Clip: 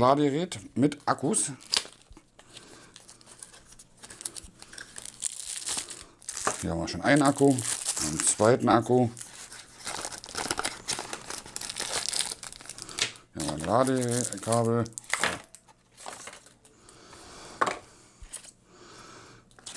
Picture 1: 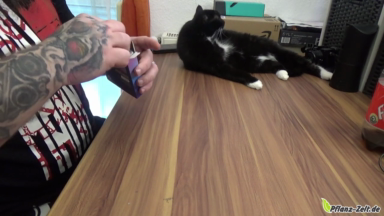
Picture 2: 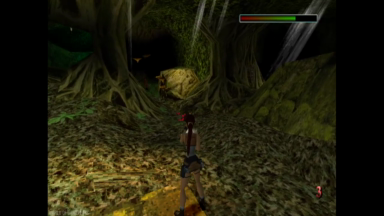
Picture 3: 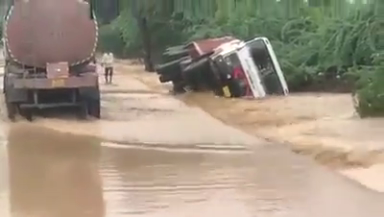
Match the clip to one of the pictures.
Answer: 1